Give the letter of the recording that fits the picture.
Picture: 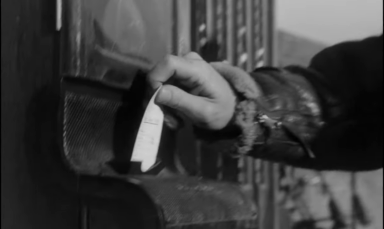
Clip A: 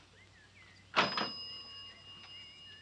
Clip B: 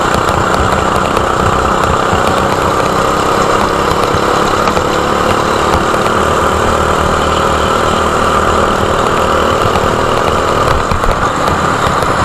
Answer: A